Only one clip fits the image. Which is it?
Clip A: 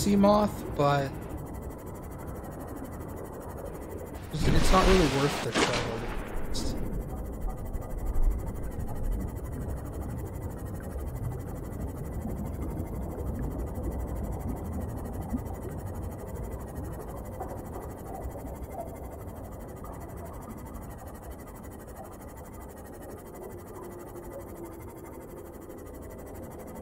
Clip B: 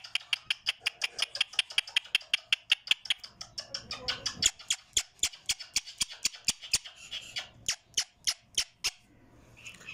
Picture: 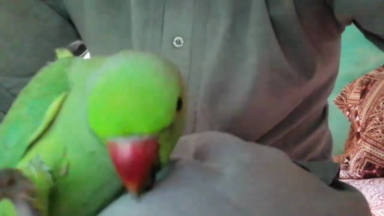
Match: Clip B